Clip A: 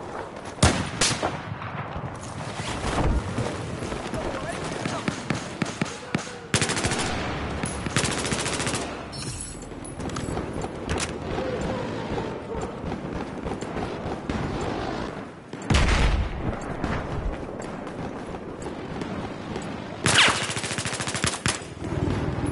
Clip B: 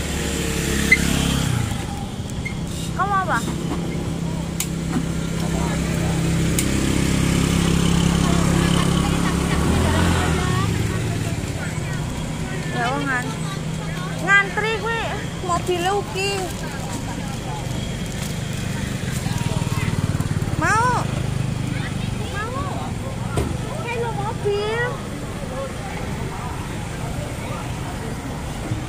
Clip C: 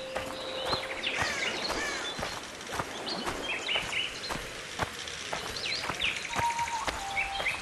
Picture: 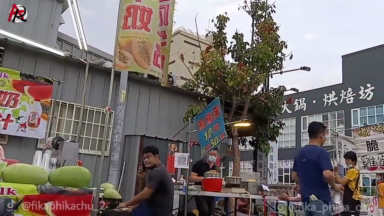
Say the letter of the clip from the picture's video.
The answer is B